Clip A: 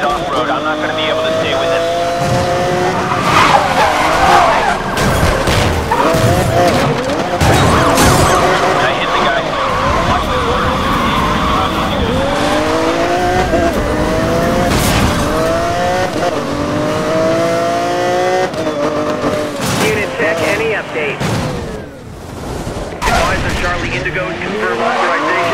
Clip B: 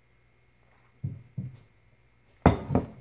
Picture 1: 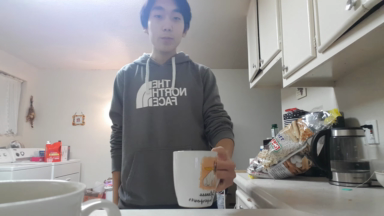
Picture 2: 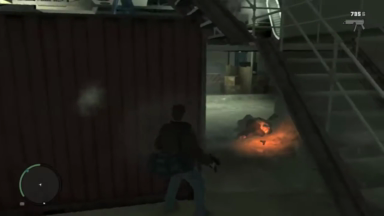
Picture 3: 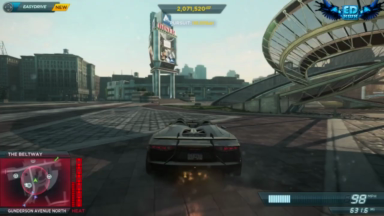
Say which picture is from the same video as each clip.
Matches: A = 3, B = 1